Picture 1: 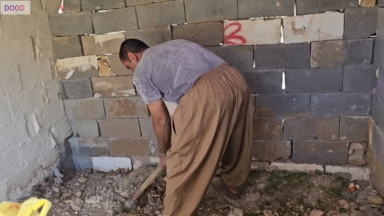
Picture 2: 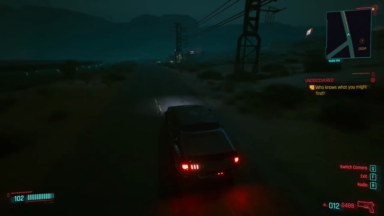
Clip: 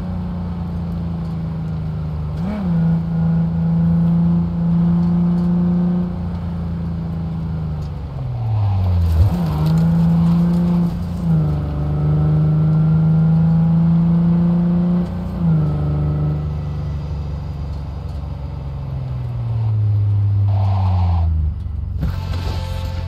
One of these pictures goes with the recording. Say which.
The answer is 2